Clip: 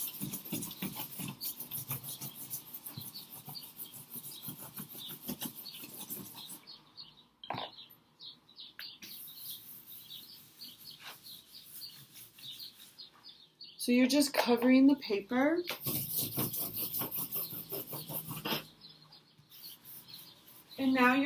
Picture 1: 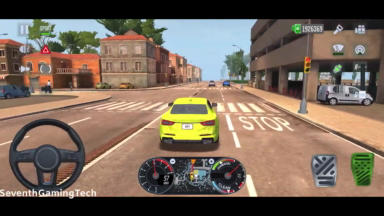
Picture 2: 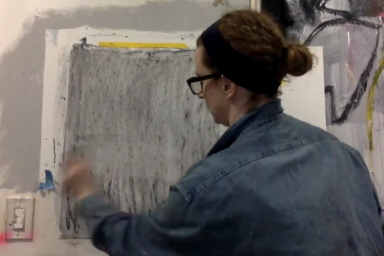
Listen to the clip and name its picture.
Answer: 2